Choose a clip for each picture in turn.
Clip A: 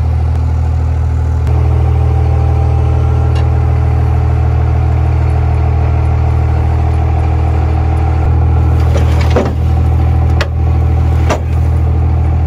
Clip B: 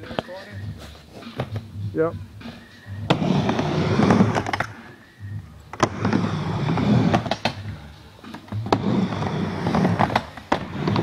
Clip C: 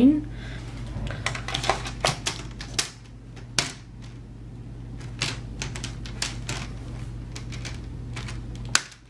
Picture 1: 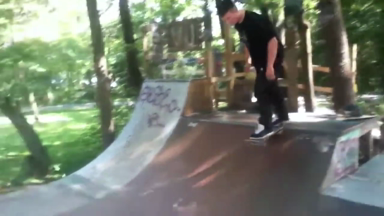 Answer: B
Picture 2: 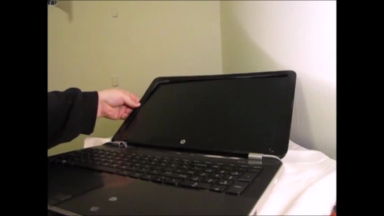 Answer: C